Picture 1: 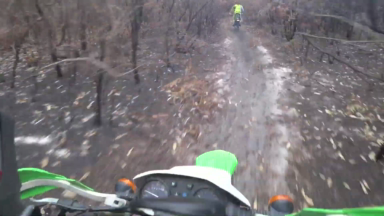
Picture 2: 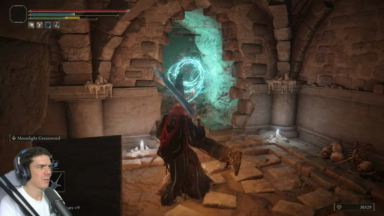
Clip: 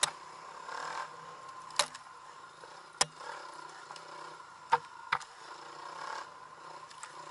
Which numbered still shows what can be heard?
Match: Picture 1